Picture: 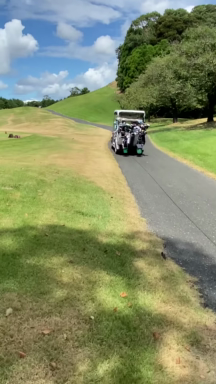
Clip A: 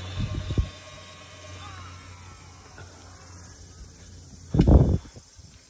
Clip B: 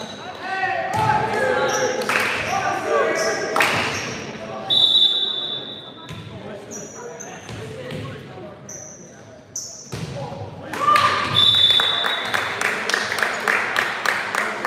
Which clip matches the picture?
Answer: A